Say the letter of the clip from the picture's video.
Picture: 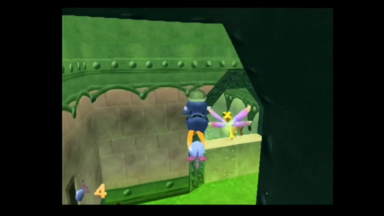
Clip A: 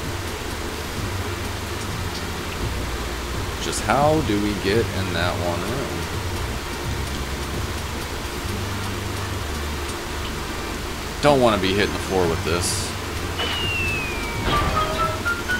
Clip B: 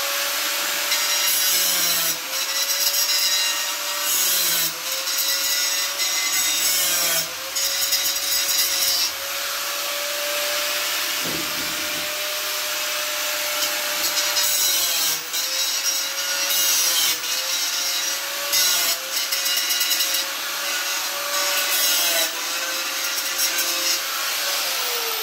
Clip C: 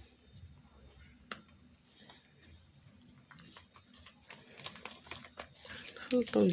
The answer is A